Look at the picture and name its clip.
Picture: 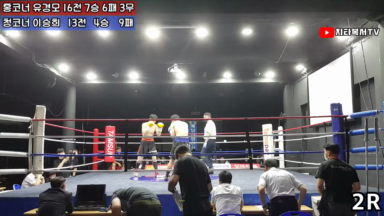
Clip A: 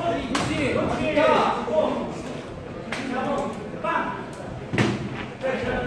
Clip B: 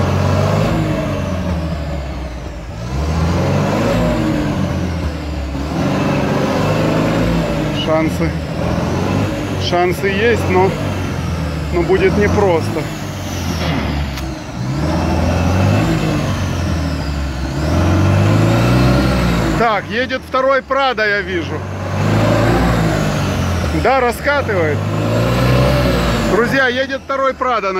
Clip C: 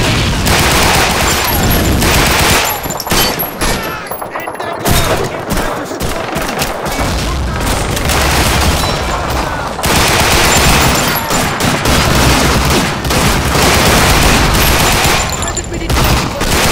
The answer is A